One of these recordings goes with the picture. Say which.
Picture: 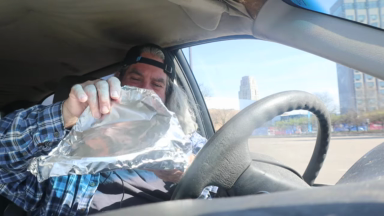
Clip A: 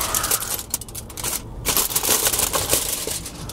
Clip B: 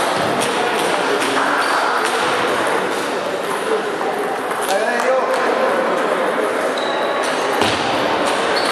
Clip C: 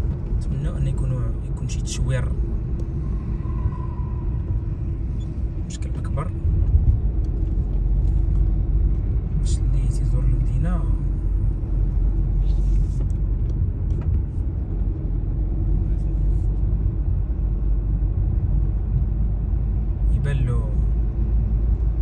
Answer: A